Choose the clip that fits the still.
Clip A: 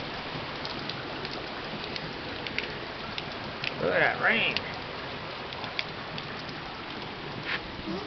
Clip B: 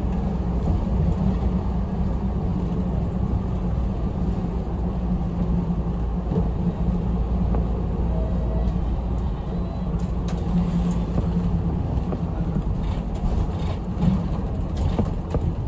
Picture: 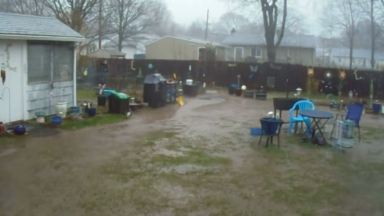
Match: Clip A